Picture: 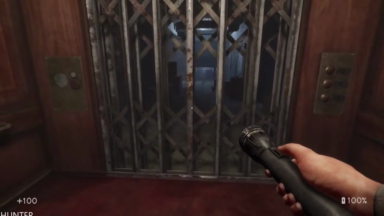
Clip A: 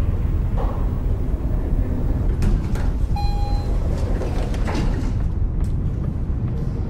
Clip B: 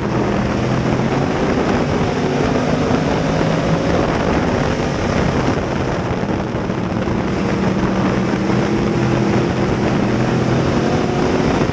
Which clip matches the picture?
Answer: A